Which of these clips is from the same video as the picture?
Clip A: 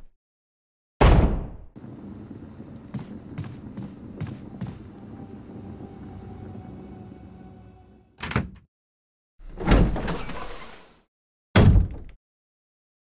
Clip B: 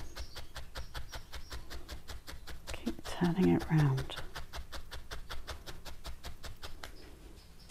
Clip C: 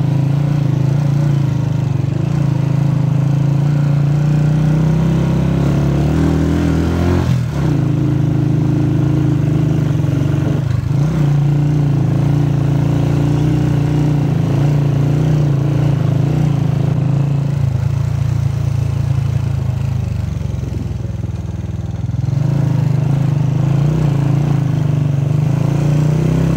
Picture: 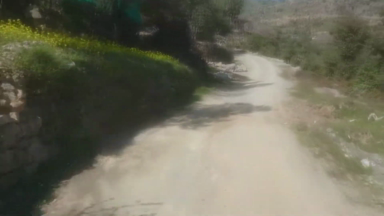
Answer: C